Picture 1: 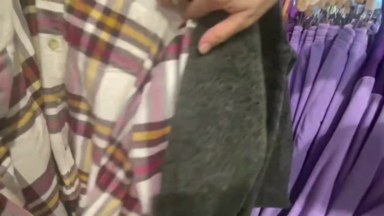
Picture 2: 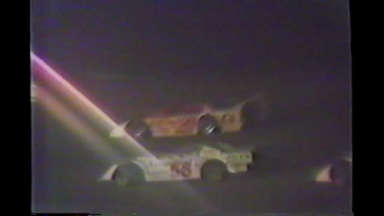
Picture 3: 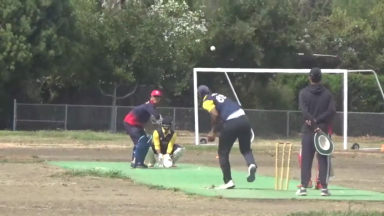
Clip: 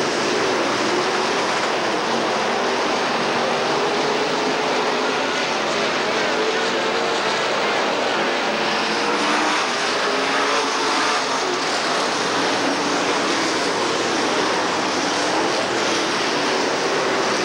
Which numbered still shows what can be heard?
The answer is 2